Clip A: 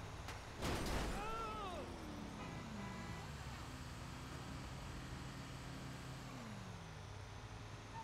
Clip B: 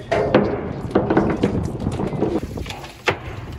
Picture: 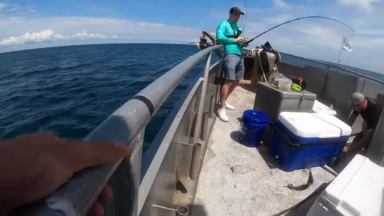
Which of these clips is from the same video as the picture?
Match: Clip B